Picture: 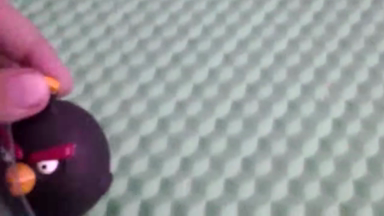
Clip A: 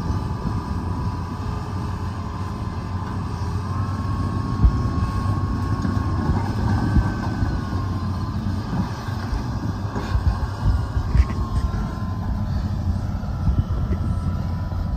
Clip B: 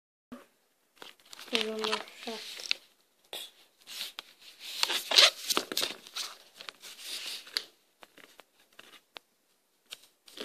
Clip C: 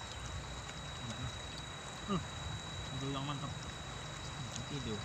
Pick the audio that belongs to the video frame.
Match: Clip B